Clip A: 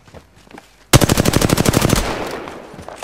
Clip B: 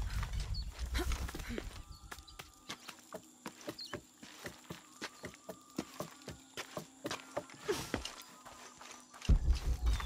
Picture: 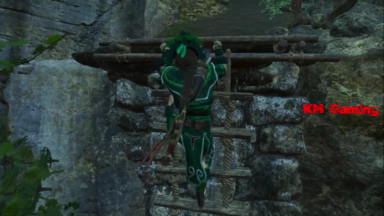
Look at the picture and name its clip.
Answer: B